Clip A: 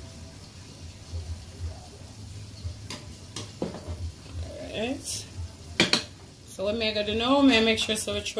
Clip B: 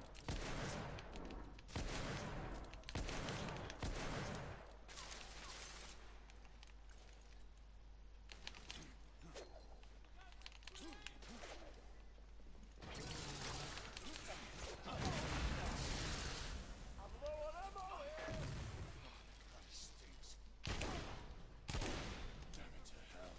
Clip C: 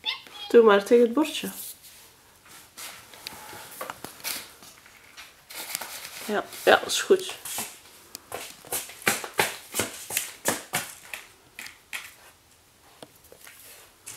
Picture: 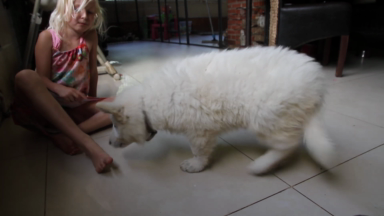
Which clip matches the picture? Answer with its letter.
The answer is C